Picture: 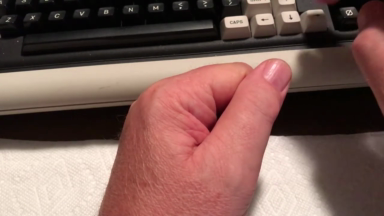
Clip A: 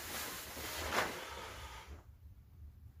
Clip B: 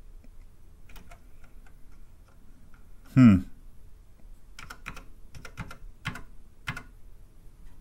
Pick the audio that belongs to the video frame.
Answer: B